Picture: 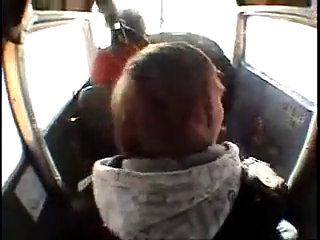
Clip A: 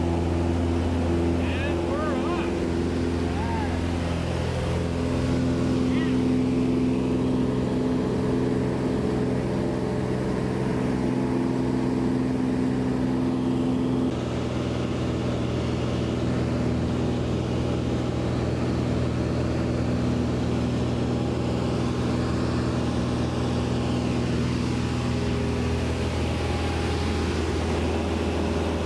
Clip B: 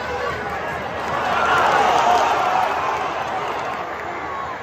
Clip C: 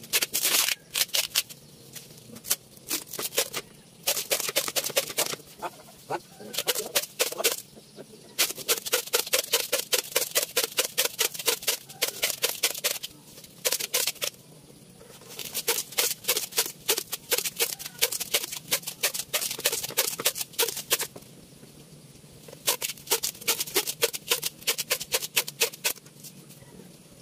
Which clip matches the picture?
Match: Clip A